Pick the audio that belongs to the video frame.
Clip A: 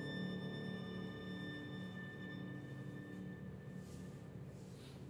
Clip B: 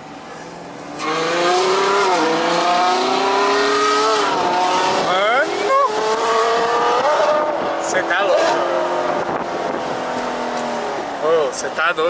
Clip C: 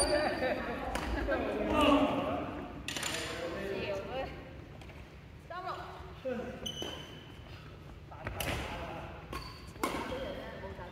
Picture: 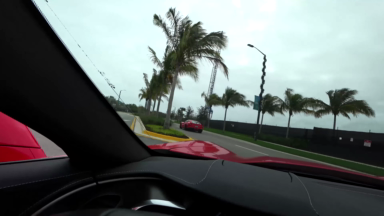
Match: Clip B